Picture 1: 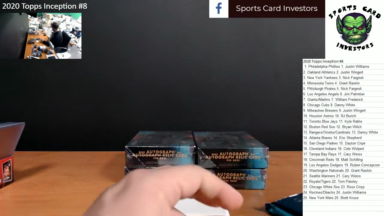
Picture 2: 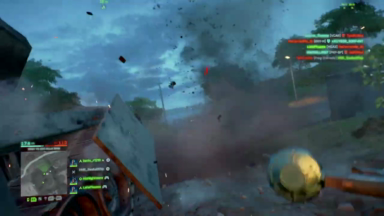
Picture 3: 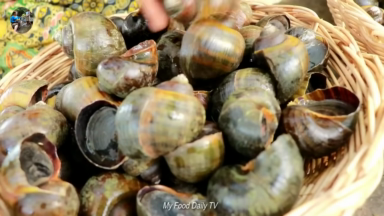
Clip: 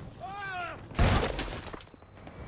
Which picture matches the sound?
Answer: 2